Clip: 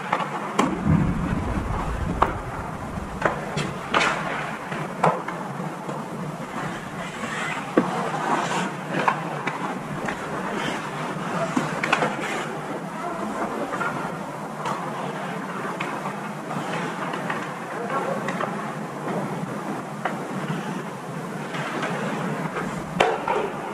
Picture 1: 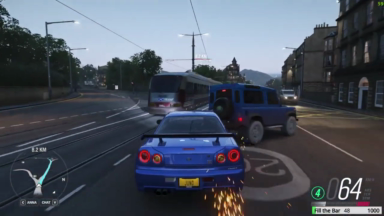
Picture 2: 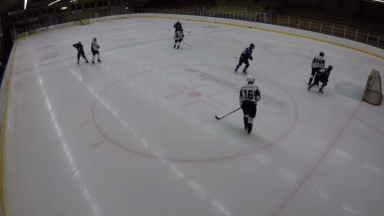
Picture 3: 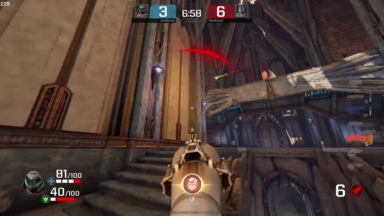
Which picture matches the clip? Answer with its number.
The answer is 2